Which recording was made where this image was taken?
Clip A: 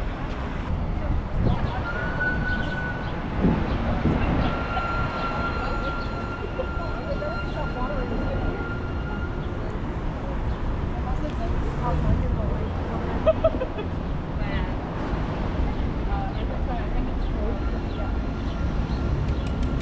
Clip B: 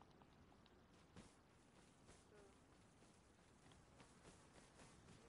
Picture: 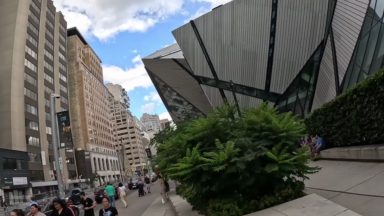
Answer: A